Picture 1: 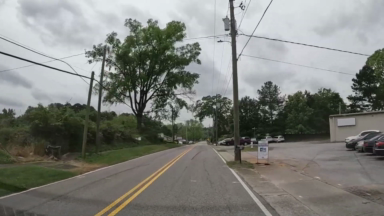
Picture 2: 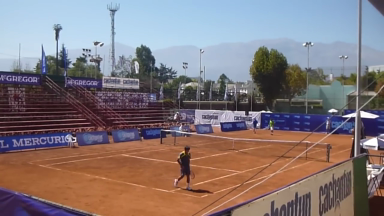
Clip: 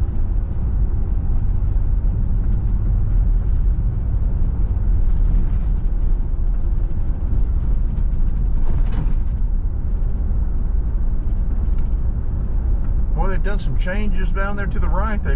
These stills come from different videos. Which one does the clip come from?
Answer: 1